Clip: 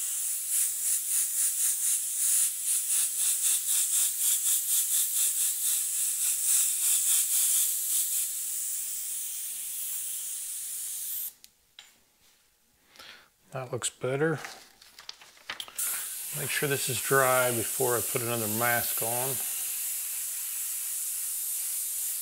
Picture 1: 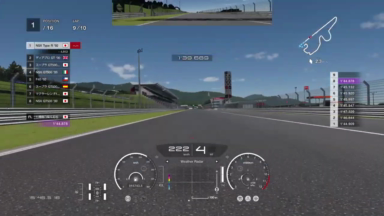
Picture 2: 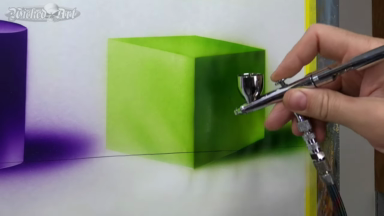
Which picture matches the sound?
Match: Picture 2